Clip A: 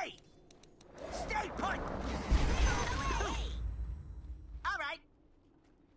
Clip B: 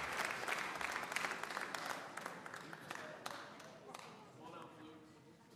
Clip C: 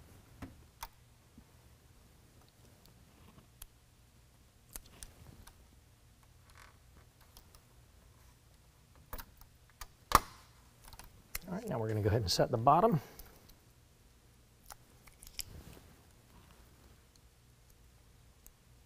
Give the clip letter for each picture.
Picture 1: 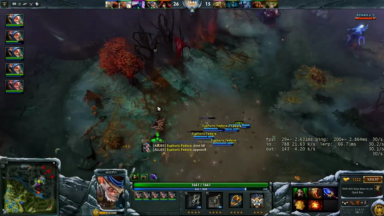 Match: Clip A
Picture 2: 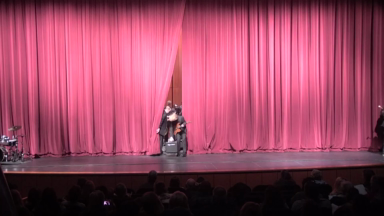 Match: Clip B